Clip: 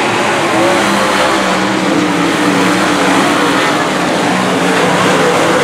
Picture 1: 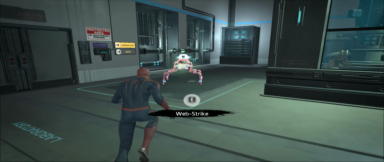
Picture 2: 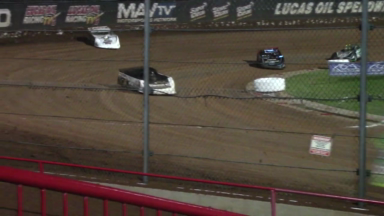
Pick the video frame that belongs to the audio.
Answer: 2